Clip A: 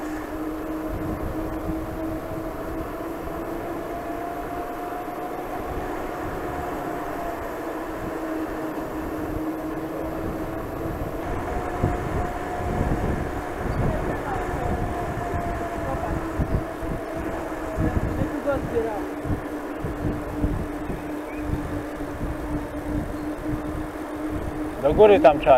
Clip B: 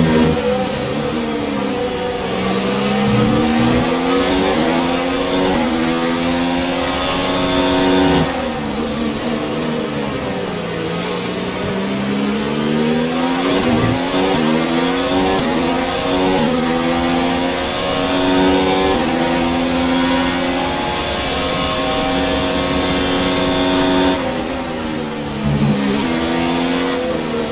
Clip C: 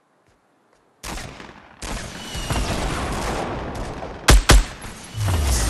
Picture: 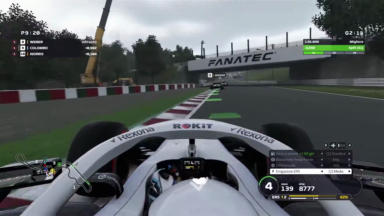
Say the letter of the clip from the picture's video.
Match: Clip B